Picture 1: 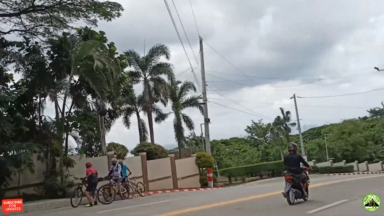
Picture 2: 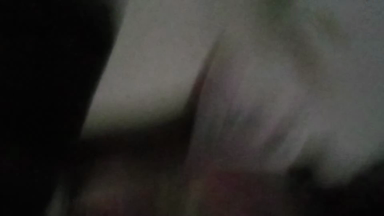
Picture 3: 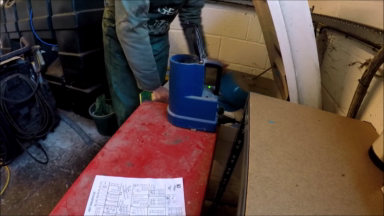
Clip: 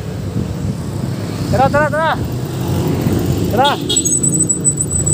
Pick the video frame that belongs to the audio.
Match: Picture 1